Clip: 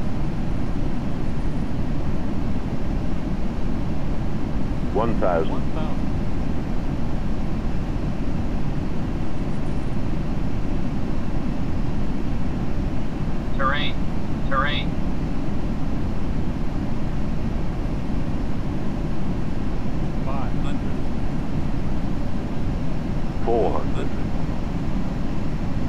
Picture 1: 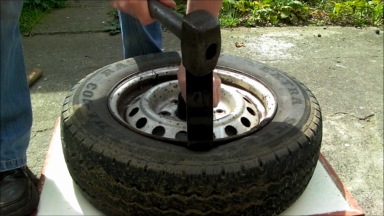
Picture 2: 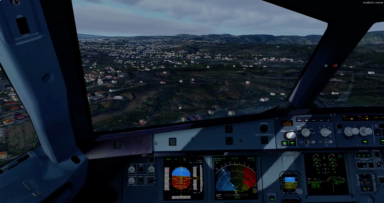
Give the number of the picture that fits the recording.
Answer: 2